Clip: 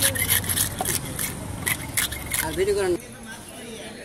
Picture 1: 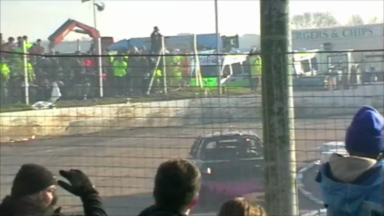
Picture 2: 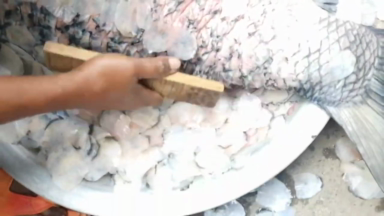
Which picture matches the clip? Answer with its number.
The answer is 2